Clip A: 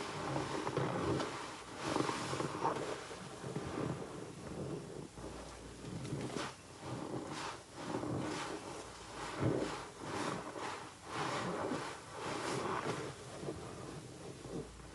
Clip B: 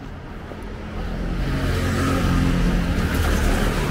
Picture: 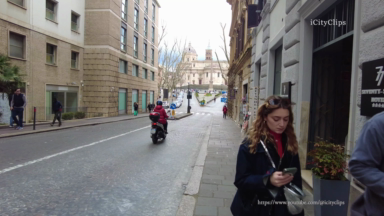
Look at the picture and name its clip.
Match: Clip B